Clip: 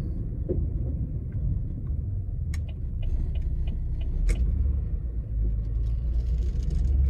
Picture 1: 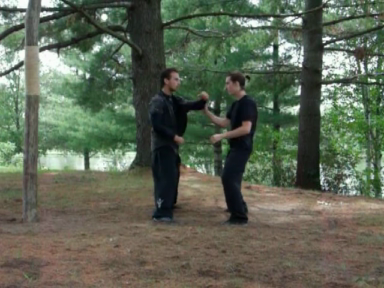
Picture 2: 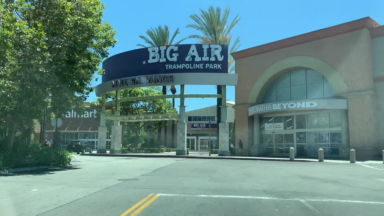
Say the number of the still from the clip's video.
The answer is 2